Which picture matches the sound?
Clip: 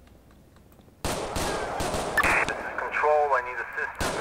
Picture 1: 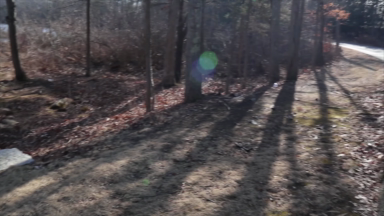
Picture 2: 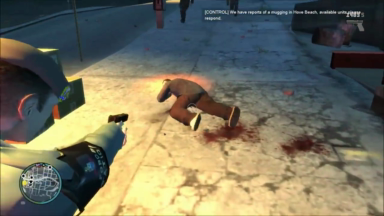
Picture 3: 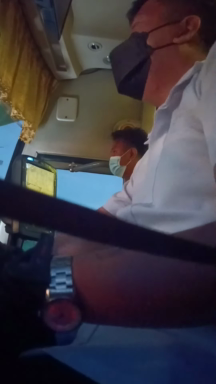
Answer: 2